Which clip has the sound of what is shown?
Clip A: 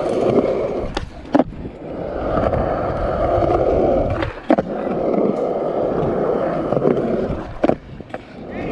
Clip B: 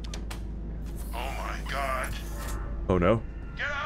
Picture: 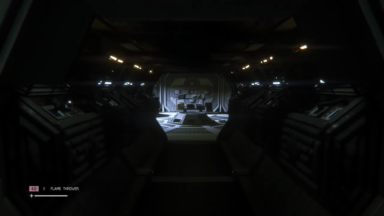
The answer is B